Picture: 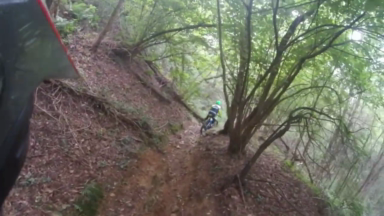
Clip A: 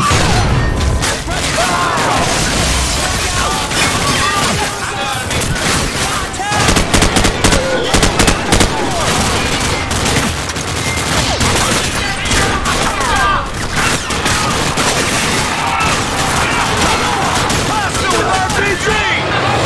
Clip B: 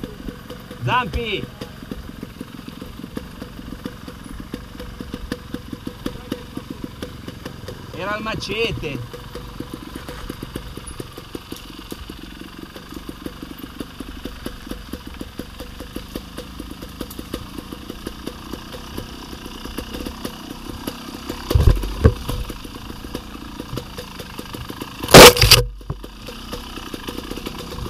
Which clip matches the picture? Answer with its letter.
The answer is B